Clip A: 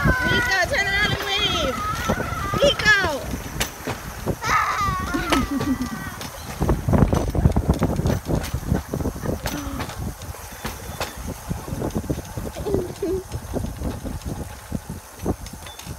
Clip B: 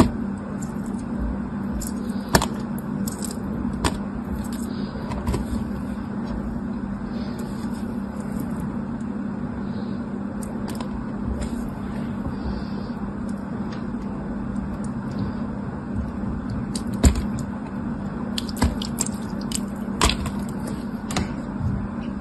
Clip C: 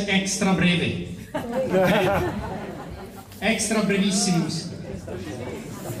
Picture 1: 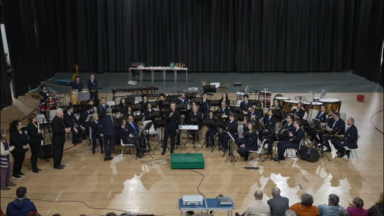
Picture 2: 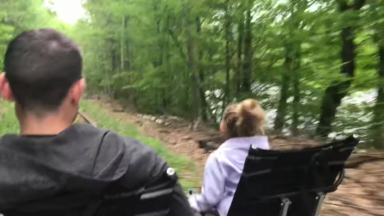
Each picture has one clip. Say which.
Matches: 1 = C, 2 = A